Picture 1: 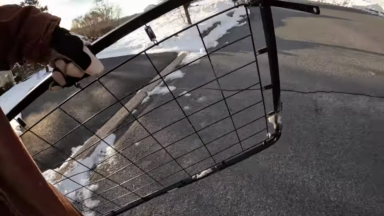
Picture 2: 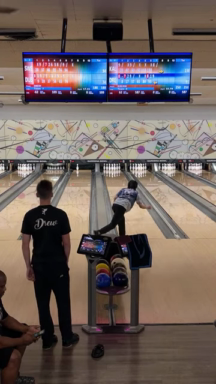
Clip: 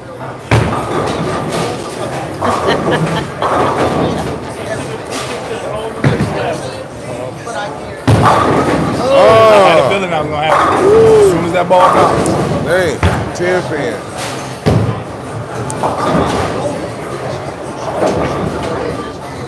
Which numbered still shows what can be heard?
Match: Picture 2